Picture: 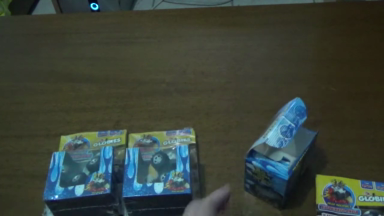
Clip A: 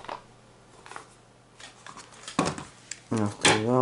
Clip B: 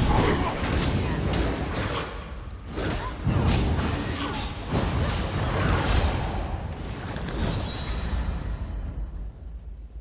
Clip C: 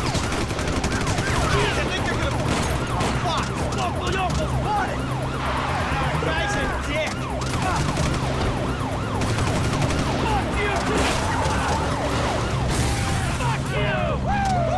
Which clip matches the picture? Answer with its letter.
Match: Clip A